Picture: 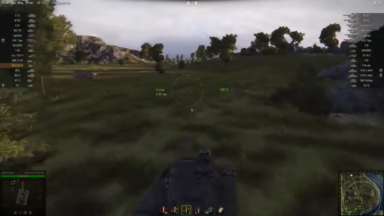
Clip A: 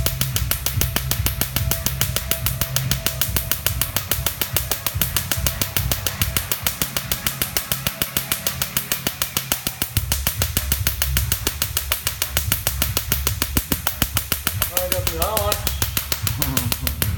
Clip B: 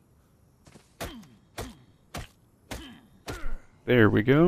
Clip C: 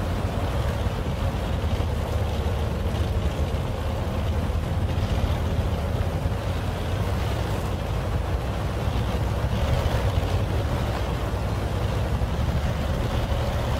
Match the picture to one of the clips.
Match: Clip C